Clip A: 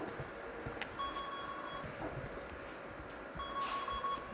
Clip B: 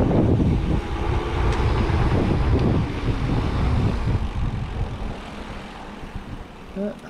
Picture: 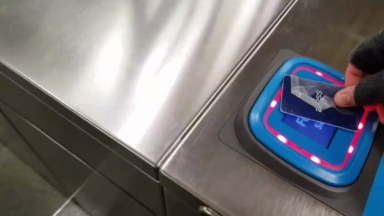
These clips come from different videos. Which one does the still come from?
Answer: A